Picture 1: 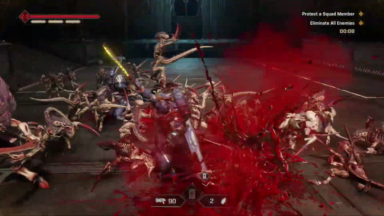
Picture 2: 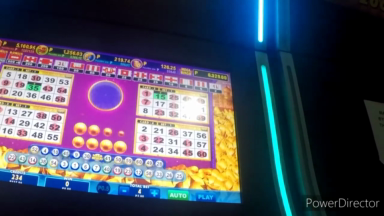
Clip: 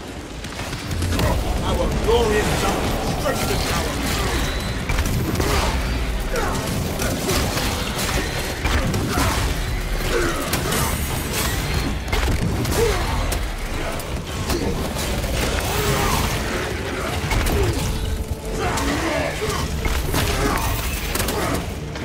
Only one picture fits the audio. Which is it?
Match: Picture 1